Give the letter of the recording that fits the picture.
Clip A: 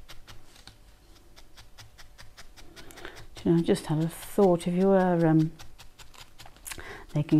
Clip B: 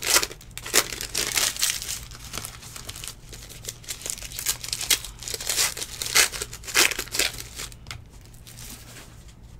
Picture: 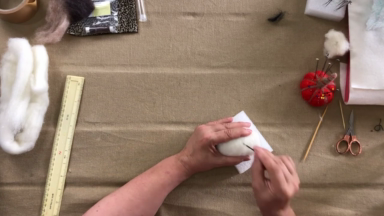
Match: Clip A